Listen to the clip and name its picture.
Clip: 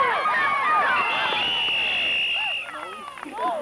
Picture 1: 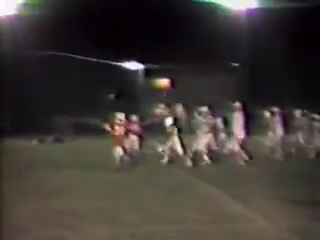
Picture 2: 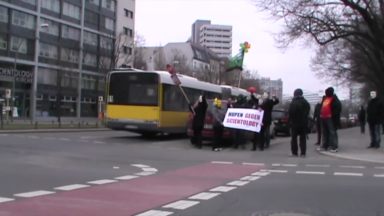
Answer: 1